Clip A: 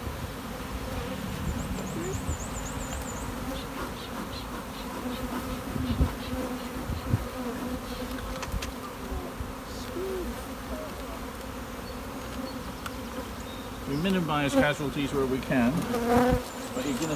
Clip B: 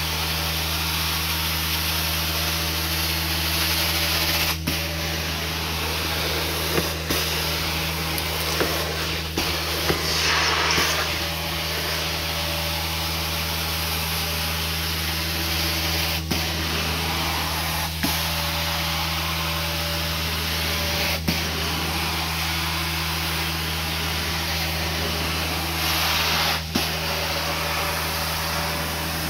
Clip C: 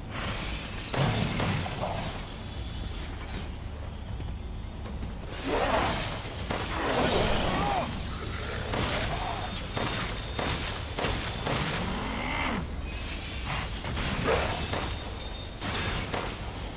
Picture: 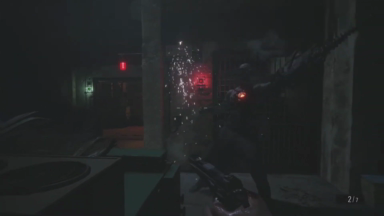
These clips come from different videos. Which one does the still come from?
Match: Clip C